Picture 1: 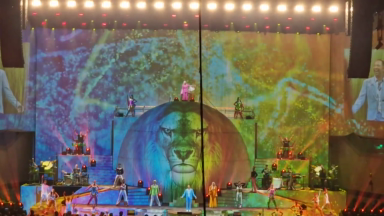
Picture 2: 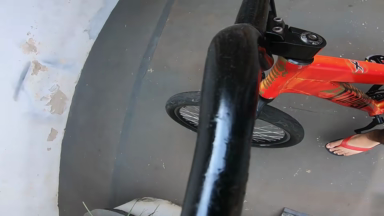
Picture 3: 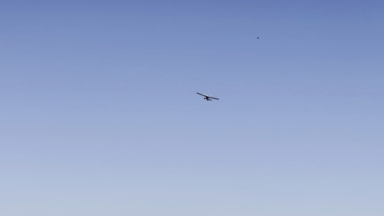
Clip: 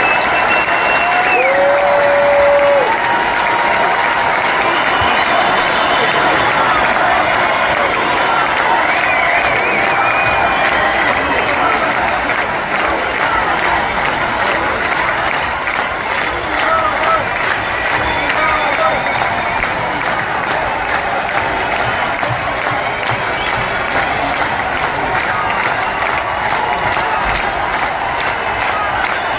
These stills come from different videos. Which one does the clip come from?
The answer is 1